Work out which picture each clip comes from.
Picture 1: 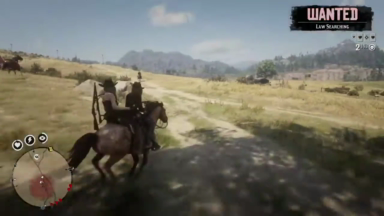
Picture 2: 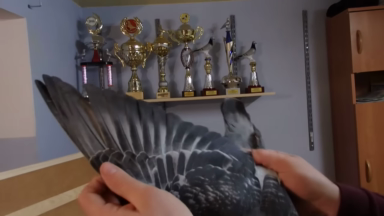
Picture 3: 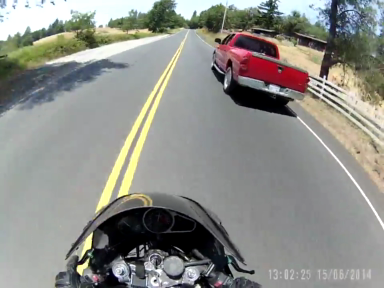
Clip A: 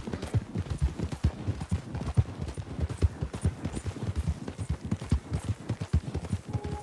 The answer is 1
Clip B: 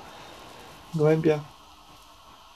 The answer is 2